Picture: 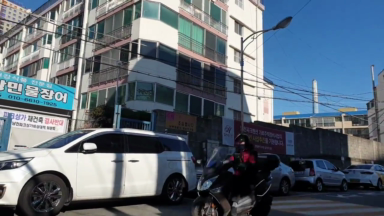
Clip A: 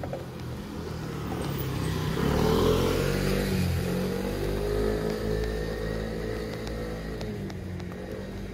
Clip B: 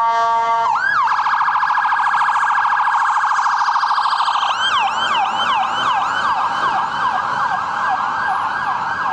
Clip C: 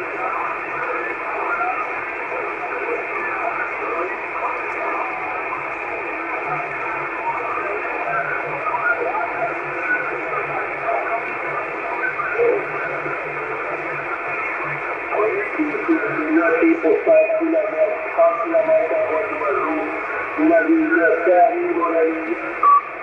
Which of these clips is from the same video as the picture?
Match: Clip A